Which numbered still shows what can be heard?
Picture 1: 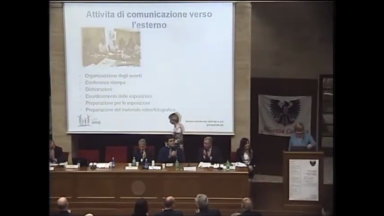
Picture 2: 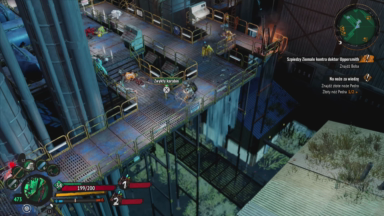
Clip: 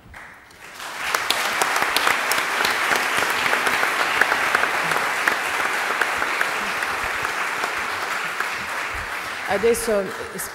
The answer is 1